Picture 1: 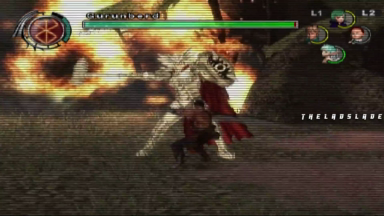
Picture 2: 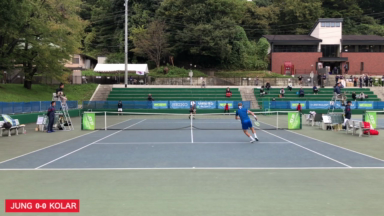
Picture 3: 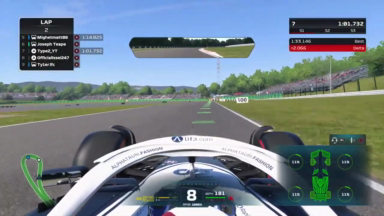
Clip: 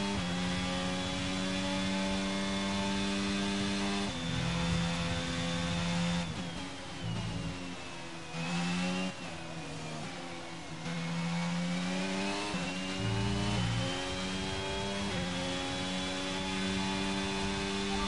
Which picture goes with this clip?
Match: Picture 3